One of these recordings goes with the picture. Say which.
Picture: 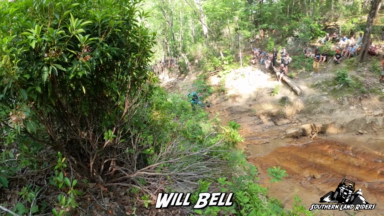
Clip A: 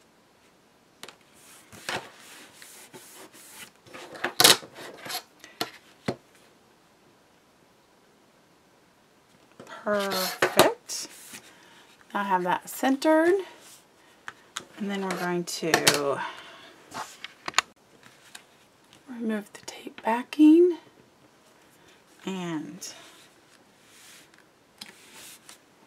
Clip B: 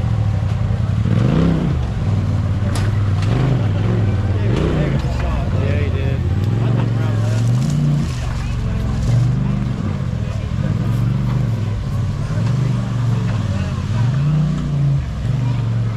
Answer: B